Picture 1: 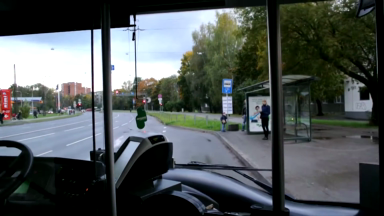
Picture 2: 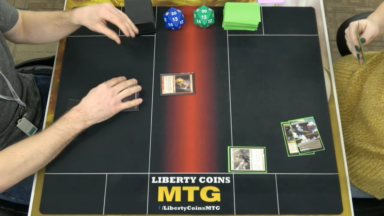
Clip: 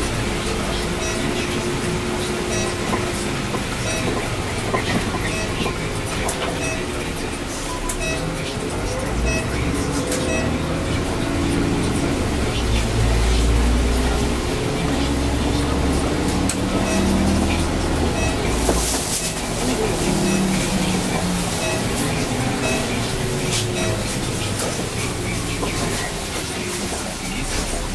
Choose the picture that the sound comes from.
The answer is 1